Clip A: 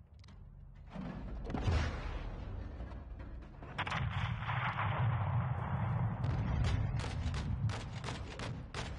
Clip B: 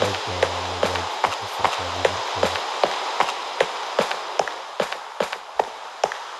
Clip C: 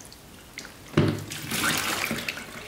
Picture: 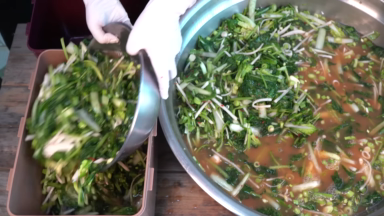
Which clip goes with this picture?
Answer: C